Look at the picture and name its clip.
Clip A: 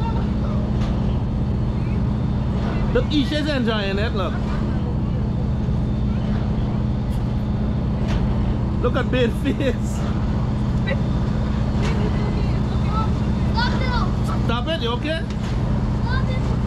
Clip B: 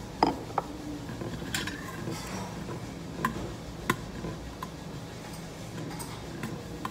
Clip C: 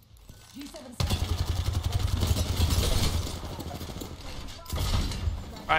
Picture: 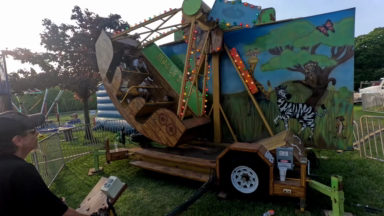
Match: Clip A